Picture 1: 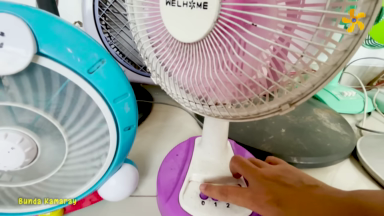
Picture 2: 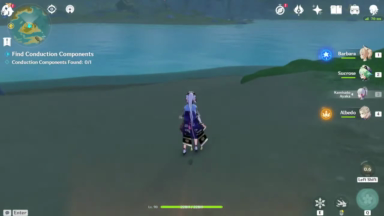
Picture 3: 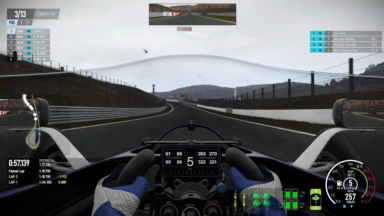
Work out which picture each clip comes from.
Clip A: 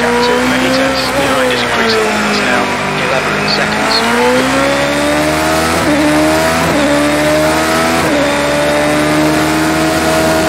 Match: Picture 3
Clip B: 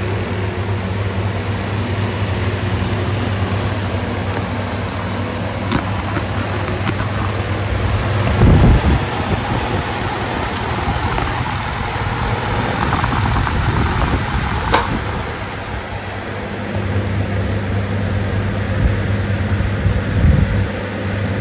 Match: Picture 1